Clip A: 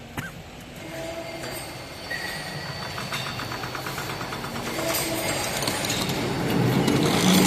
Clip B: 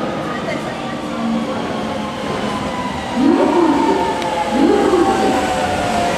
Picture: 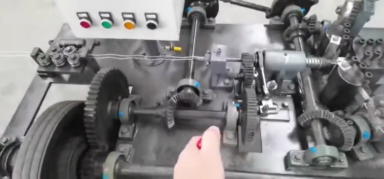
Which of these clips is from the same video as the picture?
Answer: A